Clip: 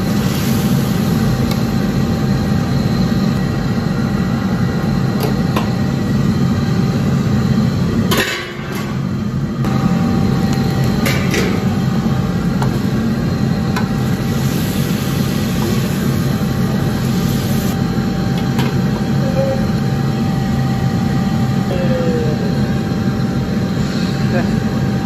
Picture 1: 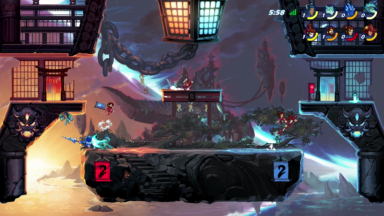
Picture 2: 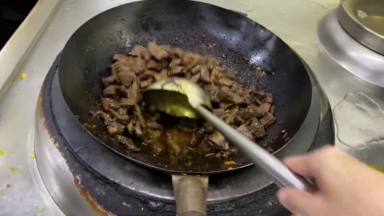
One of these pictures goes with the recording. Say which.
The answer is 2